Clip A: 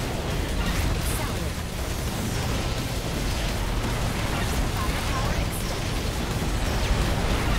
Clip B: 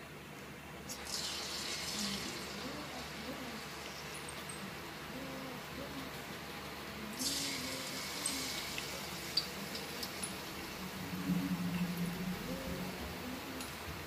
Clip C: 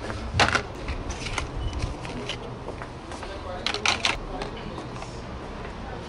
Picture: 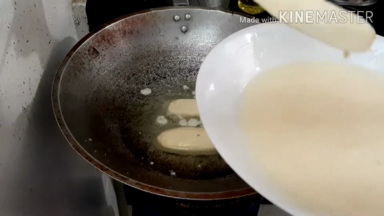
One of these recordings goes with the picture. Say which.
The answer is B